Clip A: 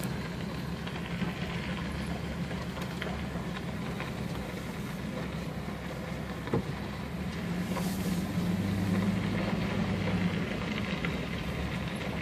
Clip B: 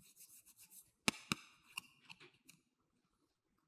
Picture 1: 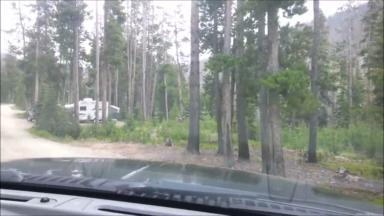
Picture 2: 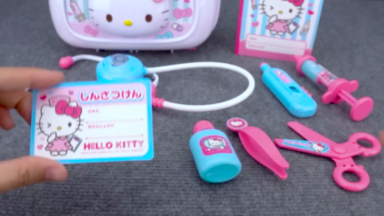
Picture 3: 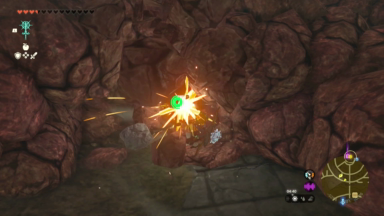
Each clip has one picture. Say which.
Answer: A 1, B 2